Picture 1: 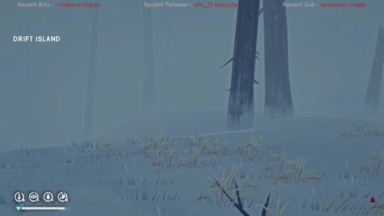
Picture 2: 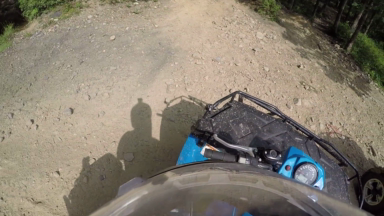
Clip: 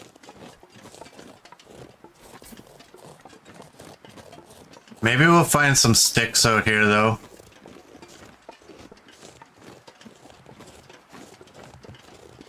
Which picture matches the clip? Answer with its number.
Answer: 1